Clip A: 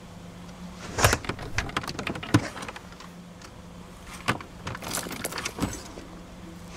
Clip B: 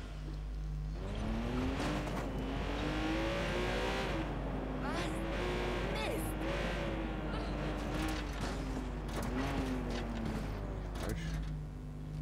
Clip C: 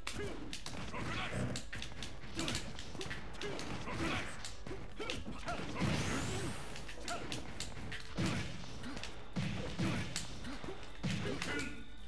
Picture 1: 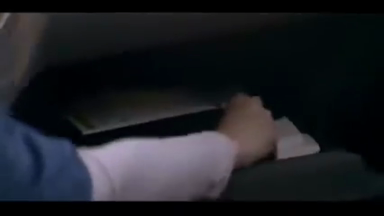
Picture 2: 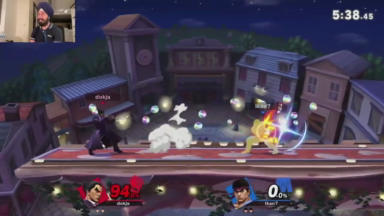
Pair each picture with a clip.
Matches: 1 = A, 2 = C